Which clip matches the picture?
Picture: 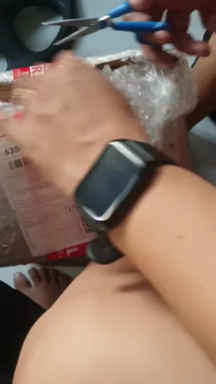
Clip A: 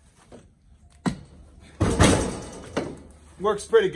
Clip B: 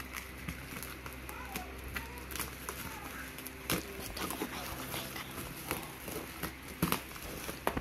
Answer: B